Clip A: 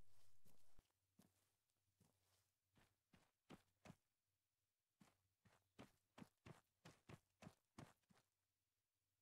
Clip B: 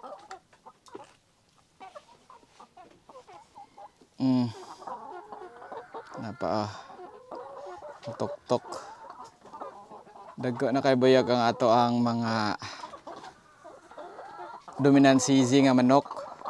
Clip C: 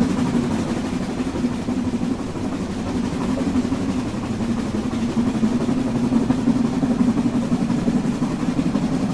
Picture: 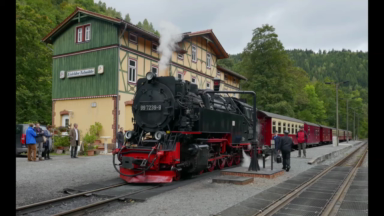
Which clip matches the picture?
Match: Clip C